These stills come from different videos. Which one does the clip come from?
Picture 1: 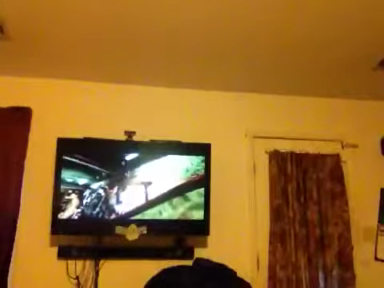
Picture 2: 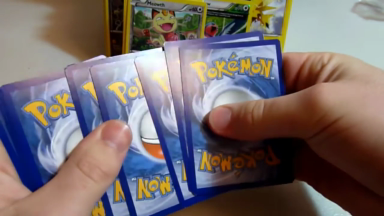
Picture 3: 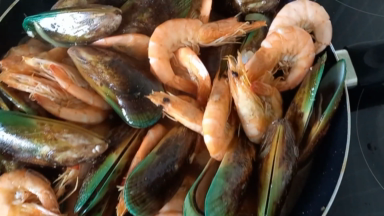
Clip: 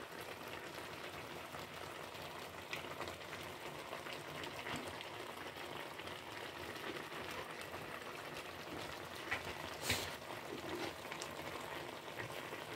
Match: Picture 3